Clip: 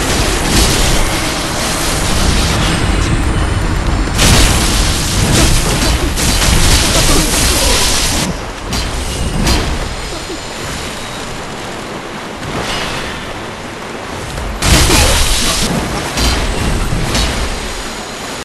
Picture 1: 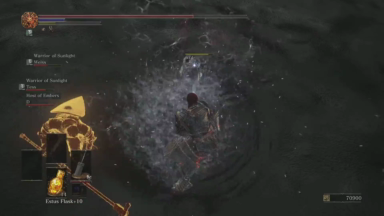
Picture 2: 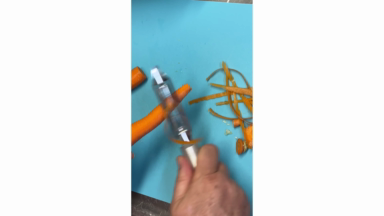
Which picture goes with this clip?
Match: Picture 1